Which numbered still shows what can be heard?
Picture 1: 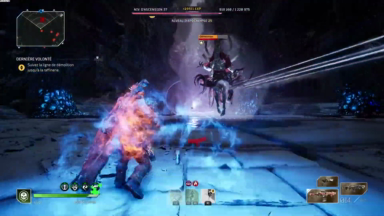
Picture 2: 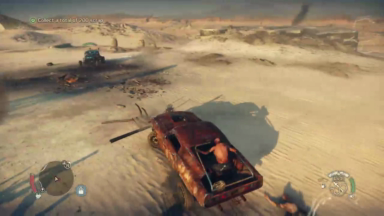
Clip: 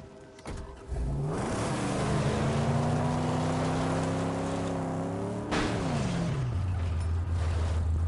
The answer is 2